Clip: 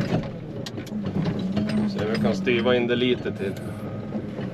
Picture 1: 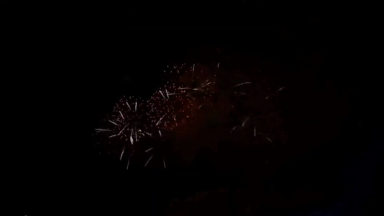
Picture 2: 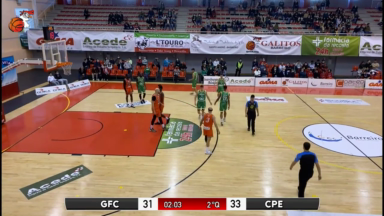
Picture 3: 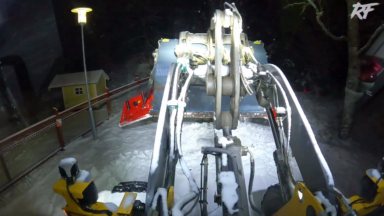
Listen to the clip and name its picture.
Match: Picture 3